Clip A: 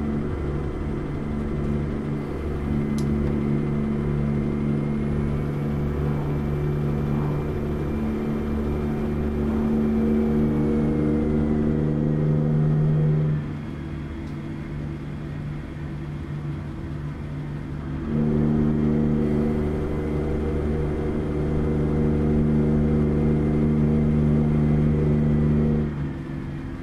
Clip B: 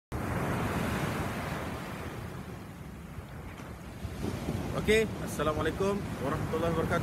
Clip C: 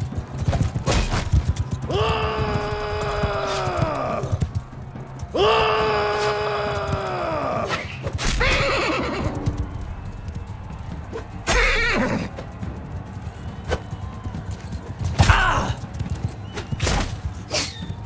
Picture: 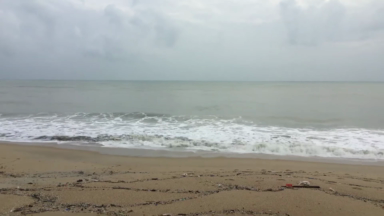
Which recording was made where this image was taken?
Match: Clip B